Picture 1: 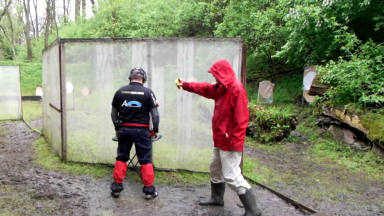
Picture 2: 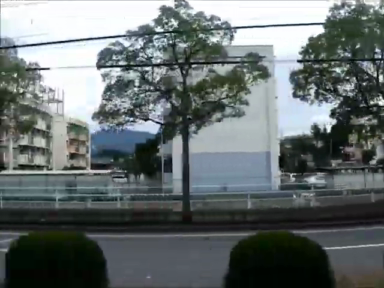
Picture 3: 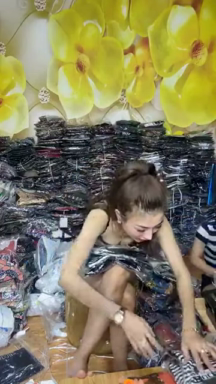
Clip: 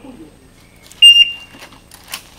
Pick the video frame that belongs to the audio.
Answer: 1